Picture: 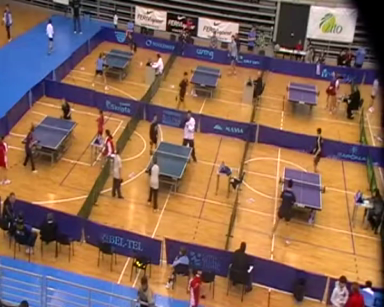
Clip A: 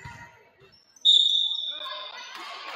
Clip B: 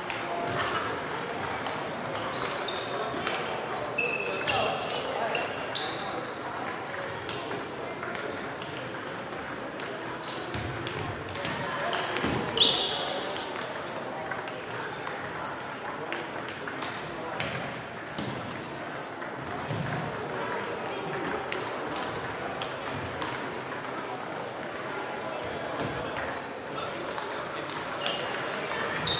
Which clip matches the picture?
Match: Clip B